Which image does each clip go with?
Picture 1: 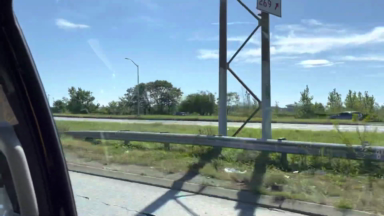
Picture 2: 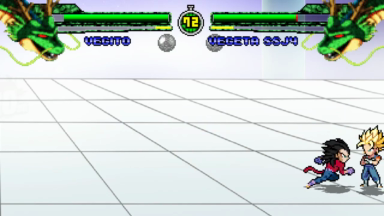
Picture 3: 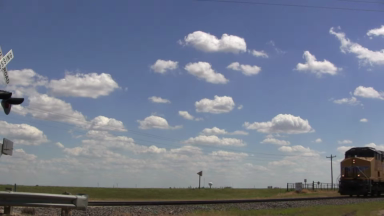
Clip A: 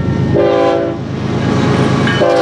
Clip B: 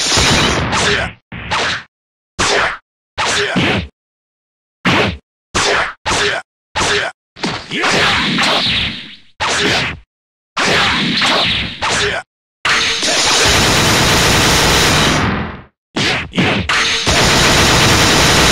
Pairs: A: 3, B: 2